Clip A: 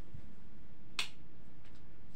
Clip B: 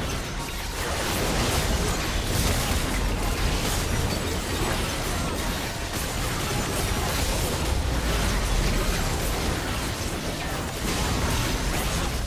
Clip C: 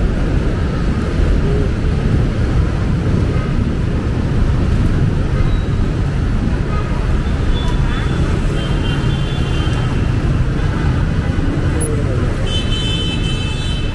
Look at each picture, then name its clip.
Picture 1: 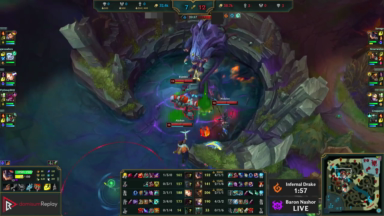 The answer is B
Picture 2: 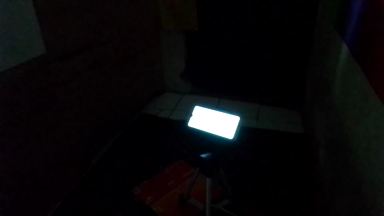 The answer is A